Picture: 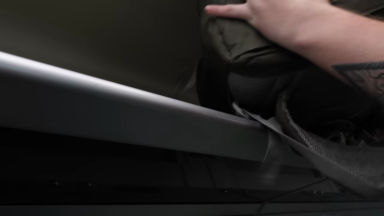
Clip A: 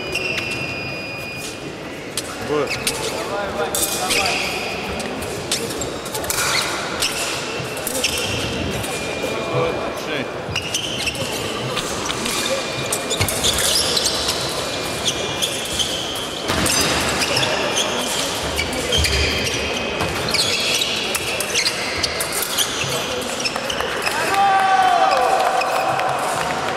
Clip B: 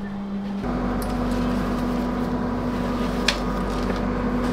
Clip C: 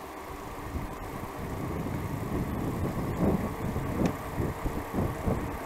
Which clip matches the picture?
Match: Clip B